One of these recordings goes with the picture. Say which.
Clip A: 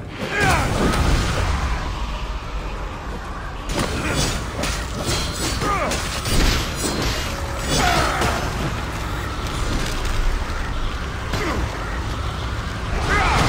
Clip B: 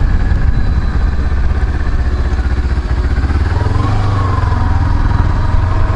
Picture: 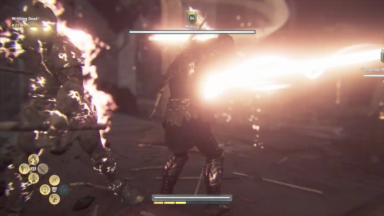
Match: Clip A